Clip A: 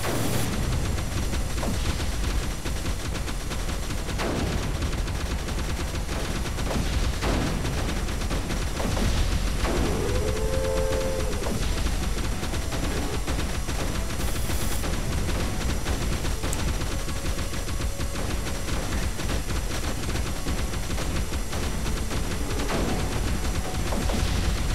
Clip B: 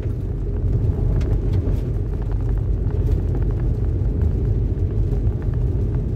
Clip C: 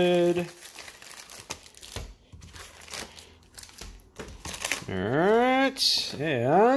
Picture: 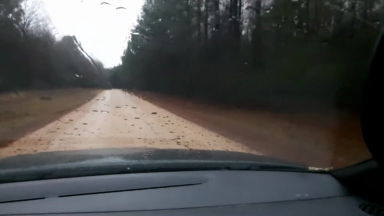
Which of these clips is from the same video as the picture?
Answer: B